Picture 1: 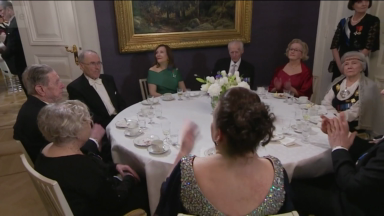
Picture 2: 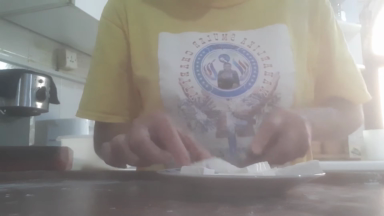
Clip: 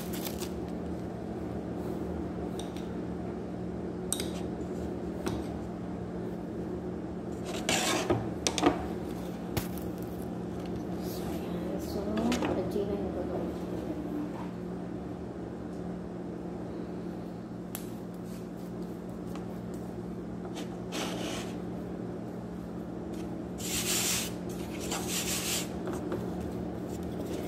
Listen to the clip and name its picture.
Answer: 2